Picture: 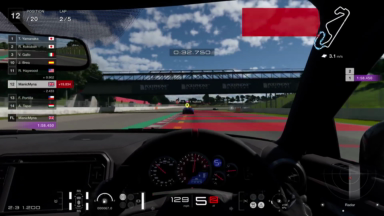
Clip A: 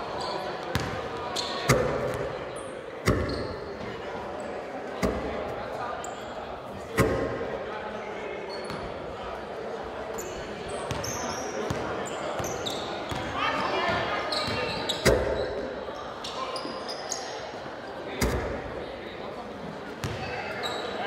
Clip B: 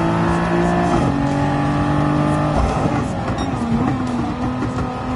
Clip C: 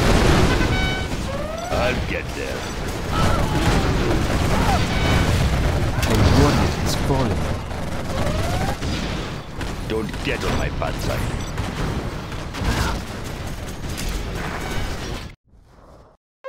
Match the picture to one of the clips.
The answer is B